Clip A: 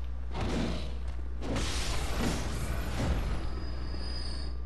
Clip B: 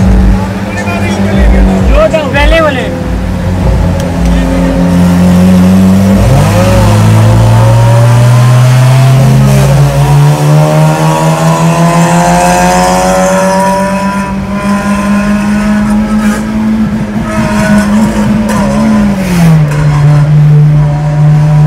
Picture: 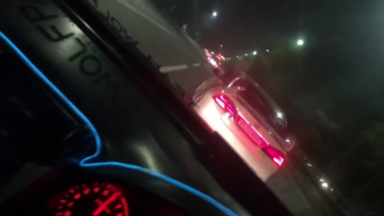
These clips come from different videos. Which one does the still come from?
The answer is B